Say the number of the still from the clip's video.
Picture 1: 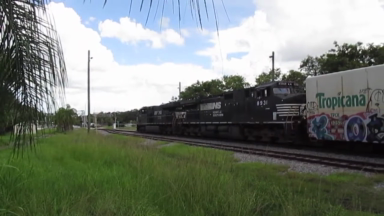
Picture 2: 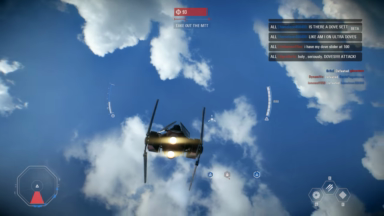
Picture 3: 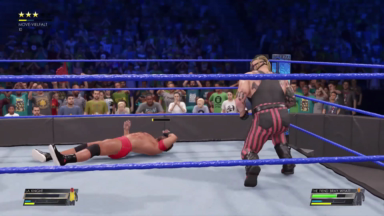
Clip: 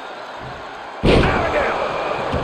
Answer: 3